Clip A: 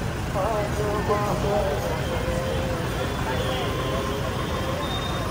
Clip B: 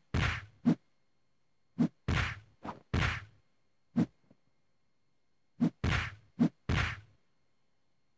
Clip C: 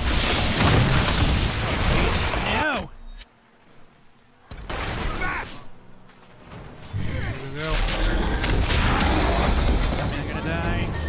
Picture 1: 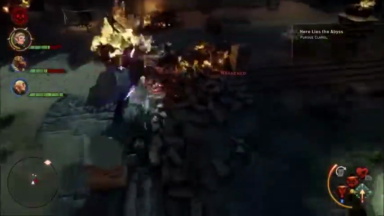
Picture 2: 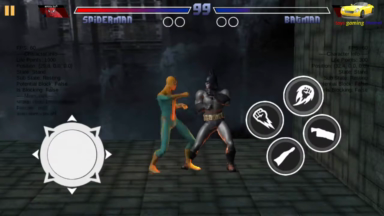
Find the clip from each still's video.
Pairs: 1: C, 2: B